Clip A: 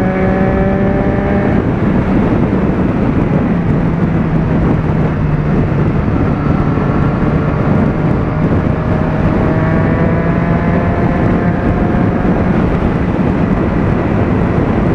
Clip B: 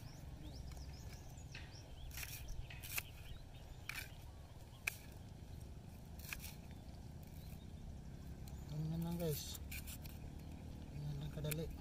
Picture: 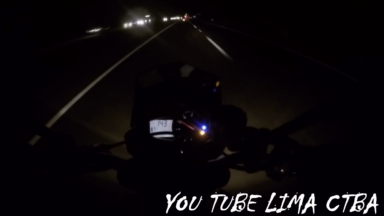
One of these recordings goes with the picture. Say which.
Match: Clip A